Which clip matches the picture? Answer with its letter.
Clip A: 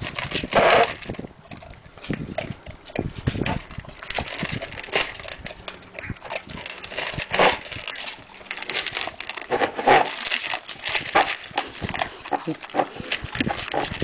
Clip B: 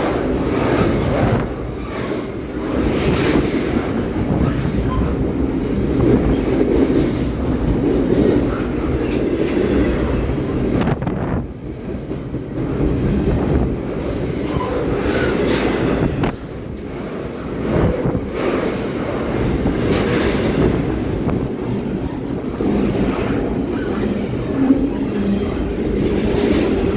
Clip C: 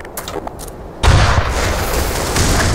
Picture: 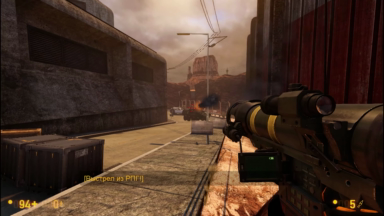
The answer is C